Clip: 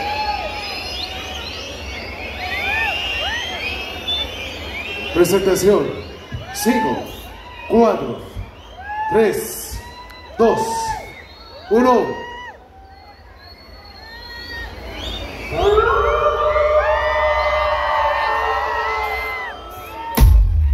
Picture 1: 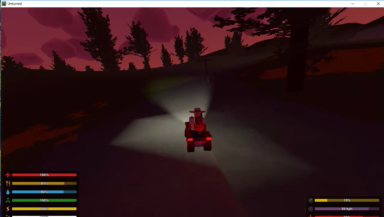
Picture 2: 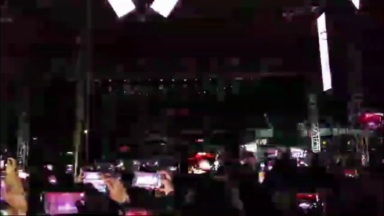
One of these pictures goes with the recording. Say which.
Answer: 2